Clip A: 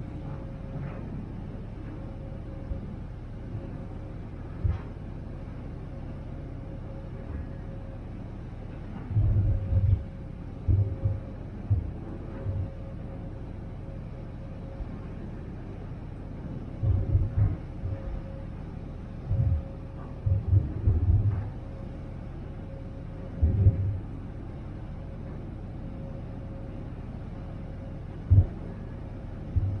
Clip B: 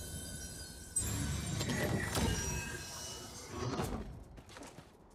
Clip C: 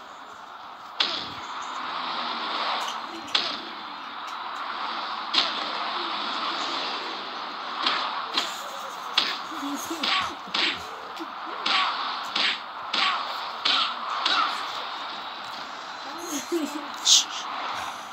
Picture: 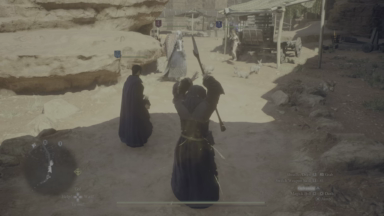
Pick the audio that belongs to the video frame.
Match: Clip B